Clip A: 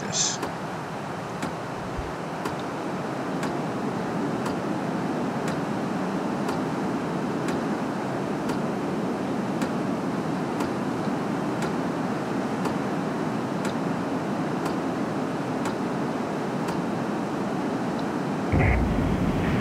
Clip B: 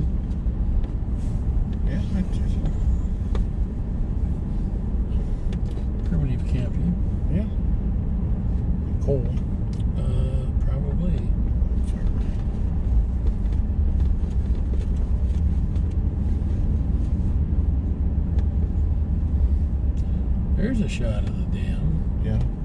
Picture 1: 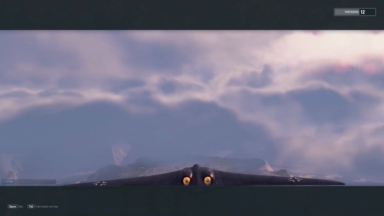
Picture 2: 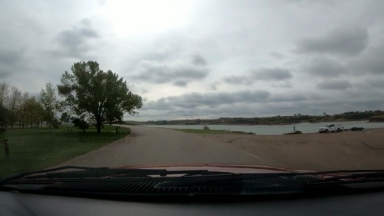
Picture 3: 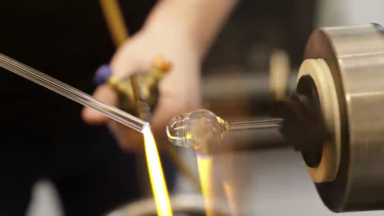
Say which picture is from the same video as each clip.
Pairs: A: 1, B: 2